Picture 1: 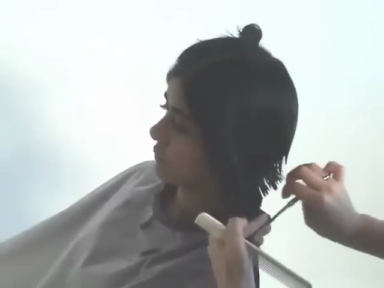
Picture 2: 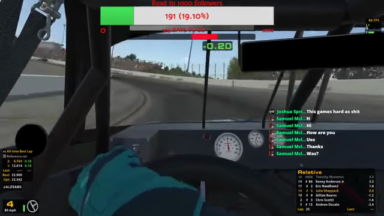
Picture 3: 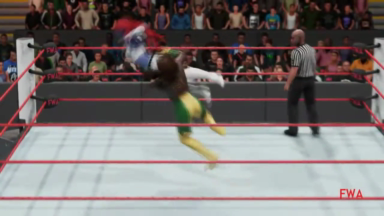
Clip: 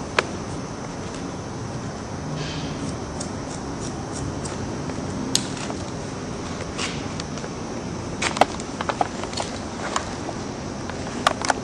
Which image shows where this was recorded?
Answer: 1